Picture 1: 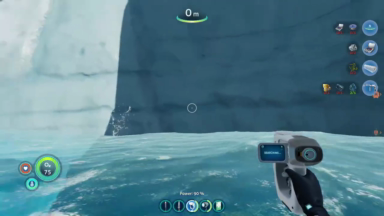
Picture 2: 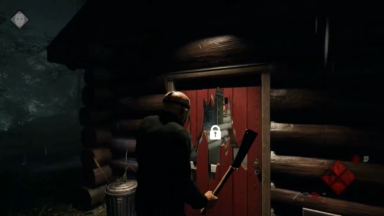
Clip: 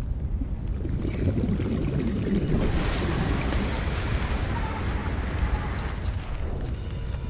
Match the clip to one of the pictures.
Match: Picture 1